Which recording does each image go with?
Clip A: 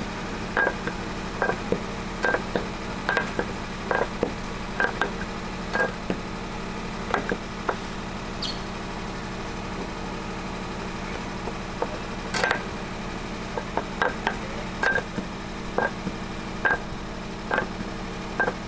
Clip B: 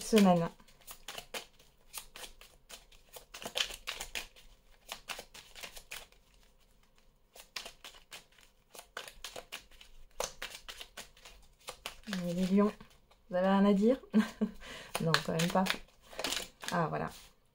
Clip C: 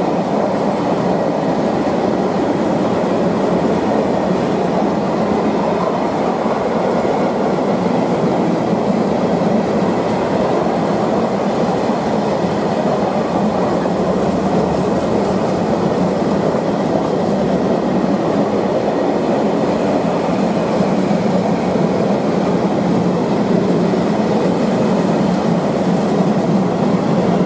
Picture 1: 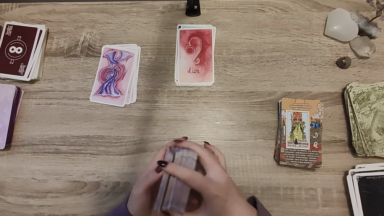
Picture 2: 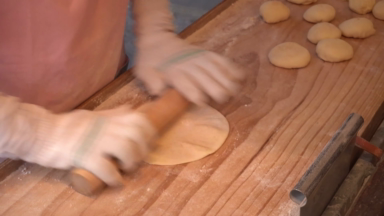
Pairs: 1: B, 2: A